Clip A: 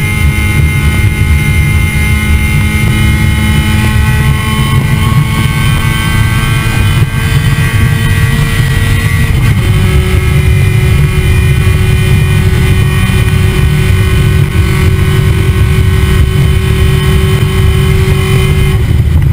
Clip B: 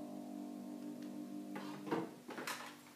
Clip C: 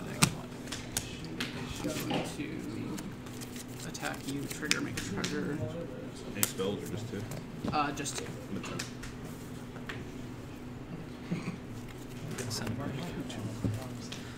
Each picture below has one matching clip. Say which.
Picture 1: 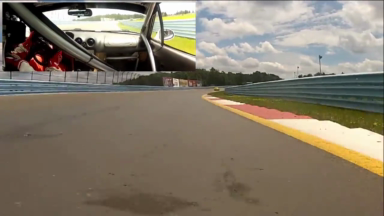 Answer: A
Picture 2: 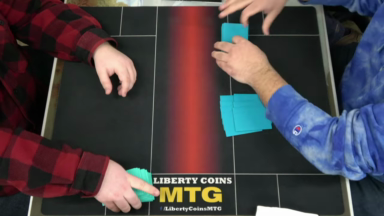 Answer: C